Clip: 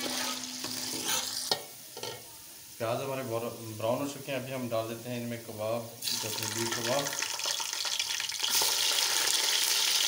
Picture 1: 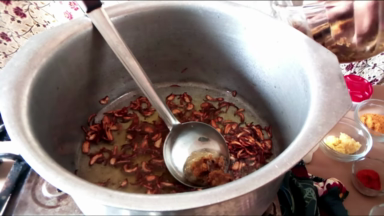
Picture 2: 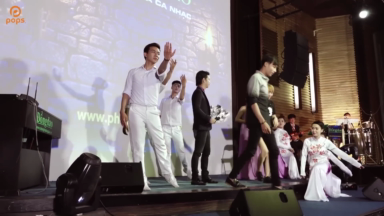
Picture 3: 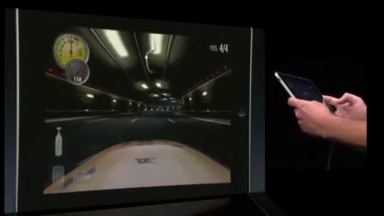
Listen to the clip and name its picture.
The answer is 1